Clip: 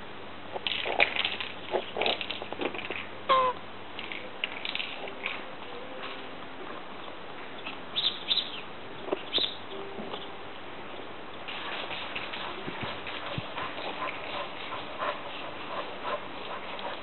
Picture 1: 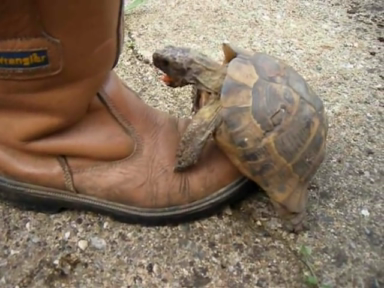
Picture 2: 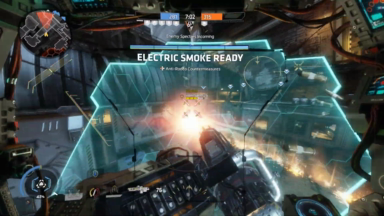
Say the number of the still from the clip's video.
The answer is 1